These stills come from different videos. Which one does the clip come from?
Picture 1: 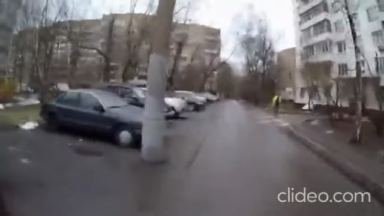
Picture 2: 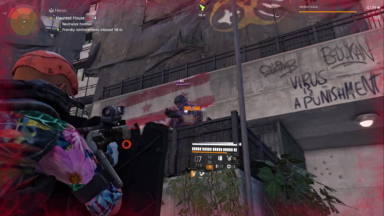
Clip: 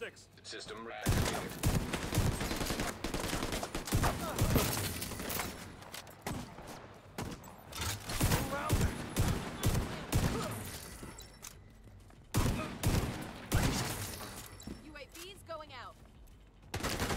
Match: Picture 2